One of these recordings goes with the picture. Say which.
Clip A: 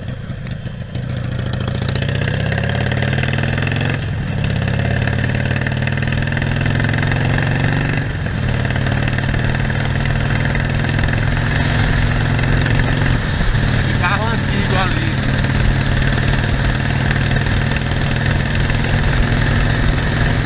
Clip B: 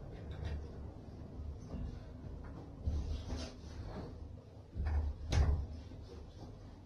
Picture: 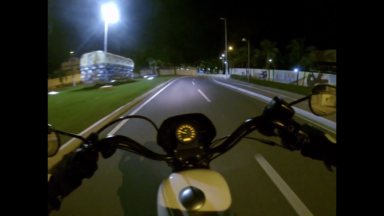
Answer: A